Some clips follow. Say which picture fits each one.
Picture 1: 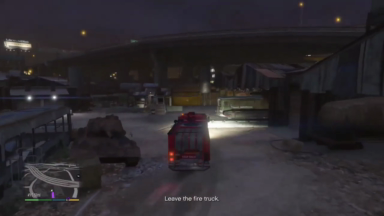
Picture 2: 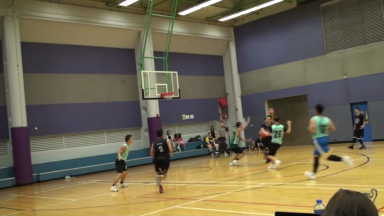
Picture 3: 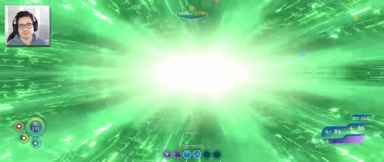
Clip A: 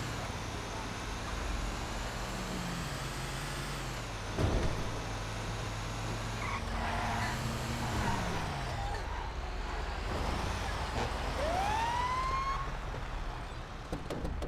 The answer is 1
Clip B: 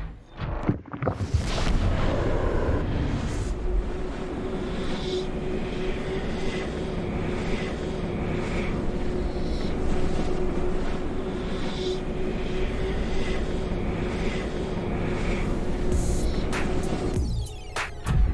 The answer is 3